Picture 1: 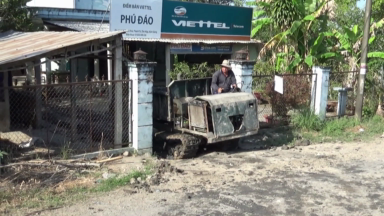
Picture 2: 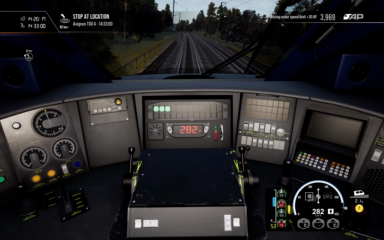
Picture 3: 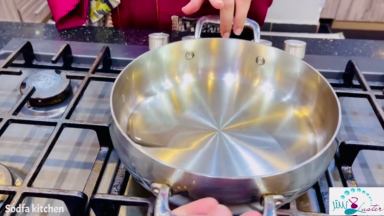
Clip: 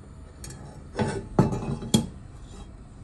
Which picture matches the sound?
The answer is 3